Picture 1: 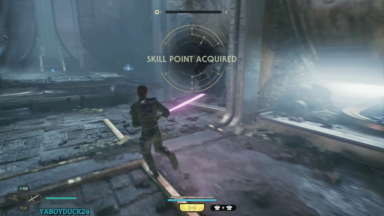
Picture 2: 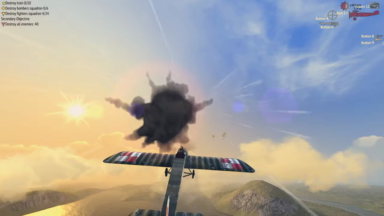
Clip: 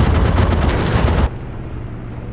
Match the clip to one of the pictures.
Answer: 2